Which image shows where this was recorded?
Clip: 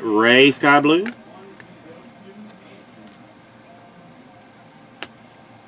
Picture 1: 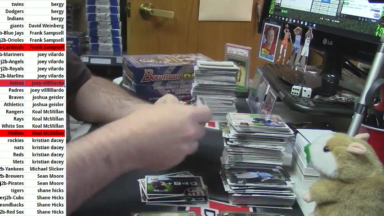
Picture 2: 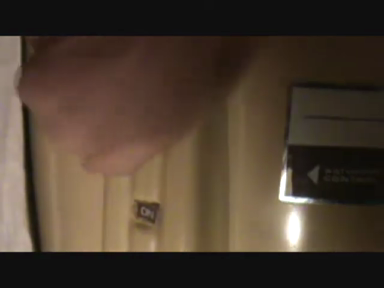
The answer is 1